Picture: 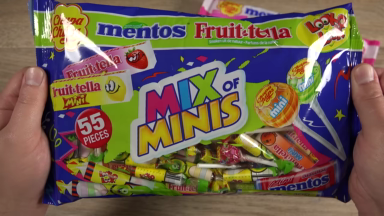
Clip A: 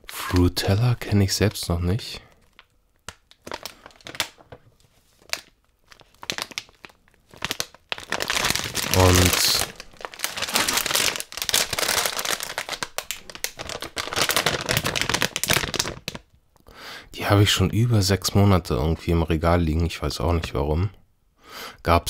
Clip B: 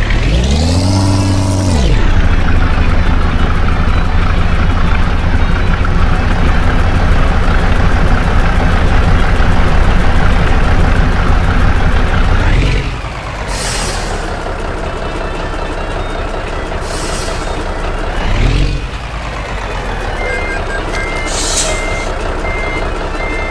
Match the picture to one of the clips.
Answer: A